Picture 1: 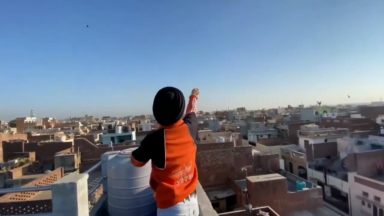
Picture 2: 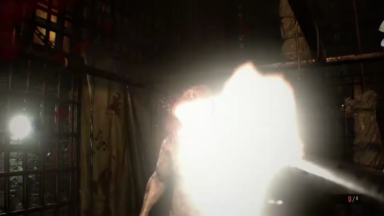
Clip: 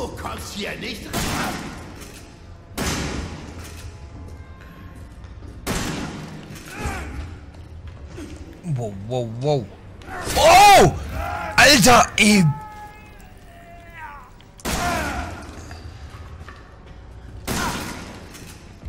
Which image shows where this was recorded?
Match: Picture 2